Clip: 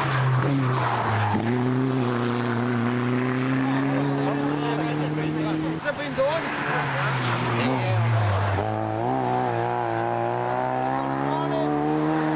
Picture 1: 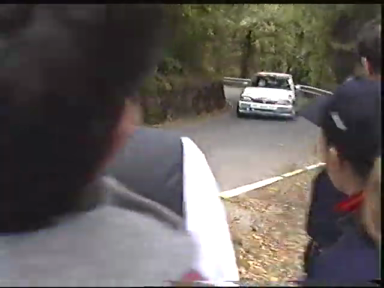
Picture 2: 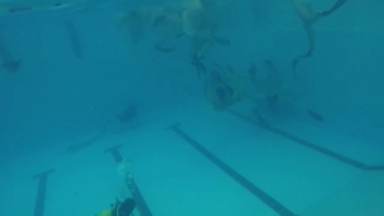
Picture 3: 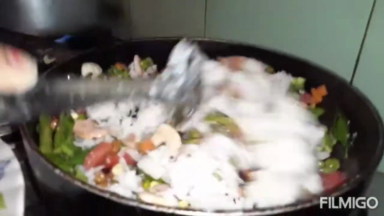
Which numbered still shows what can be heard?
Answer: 1